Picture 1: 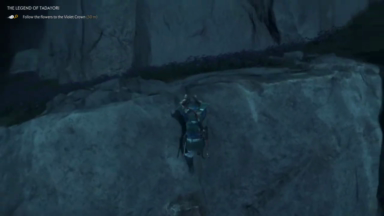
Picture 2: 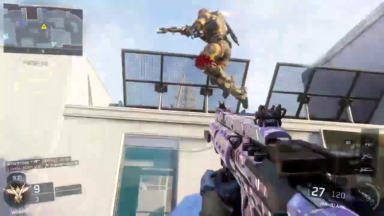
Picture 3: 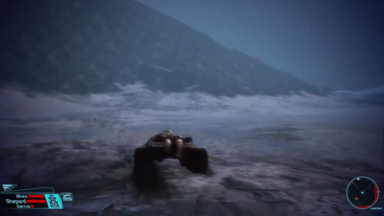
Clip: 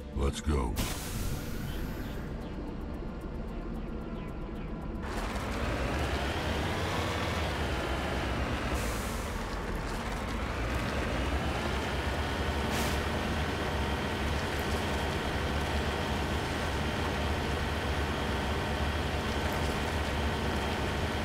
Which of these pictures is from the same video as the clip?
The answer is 3